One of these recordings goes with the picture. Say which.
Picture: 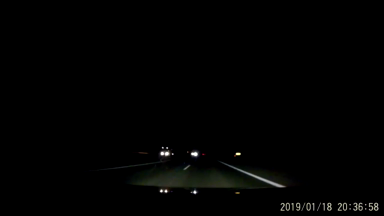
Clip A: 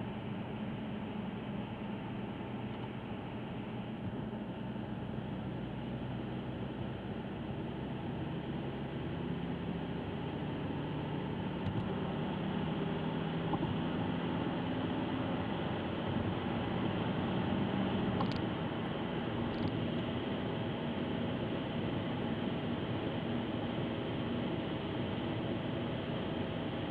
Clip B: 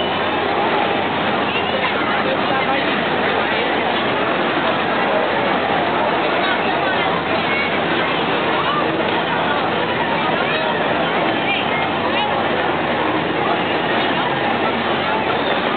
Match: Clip A